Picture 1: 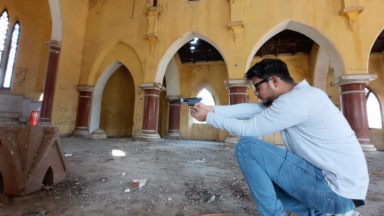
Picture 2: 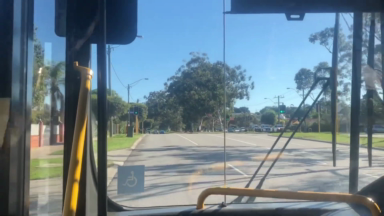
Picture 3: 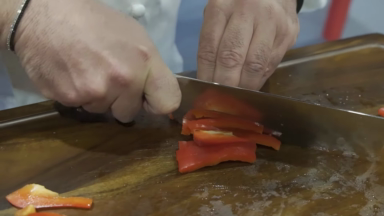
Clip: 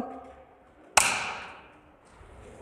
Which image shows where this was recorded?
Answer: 1